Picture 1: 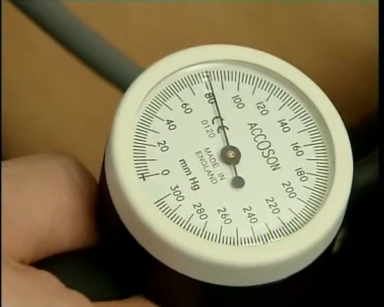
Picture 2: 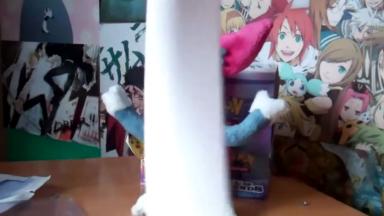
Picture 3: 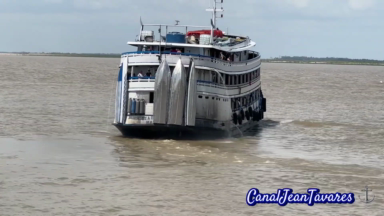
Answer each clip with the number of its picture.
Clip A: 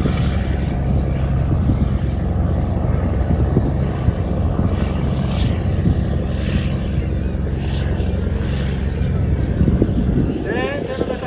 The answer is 3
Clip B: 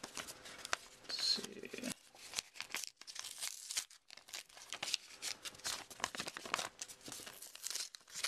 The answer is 2